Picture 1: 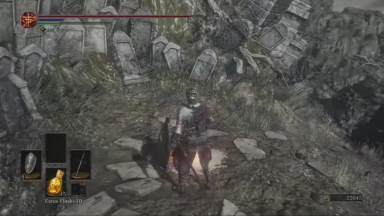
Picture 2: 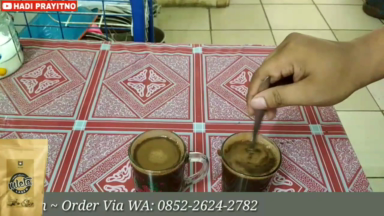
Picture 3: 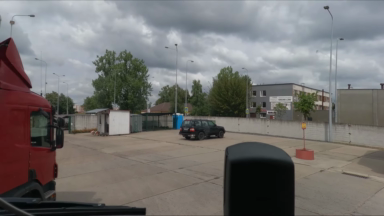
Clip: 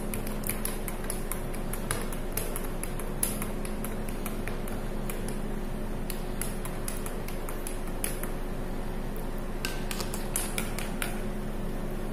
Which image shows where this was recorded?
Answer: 2